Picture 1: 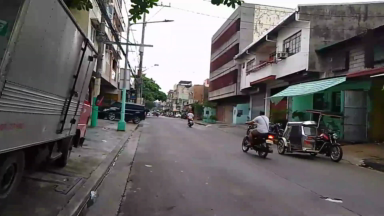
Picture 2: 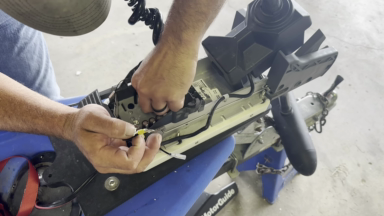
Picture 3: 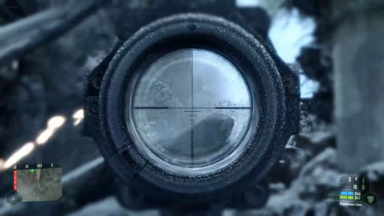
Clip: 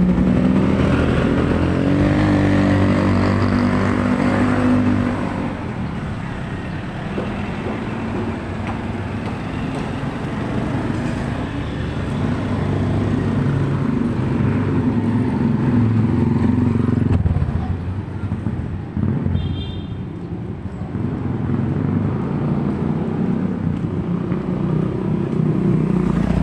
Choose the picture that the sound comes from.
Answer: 1